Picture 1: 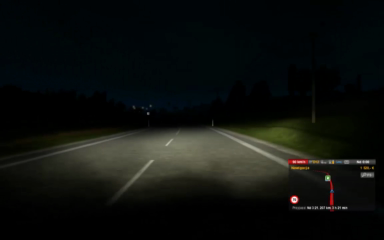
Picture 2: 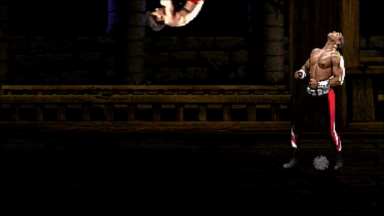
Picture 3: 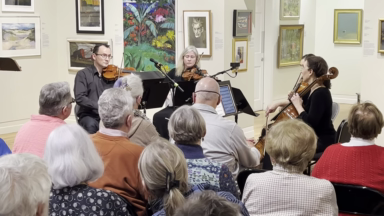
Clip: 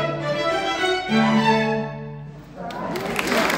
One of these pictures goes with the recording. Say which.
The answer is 3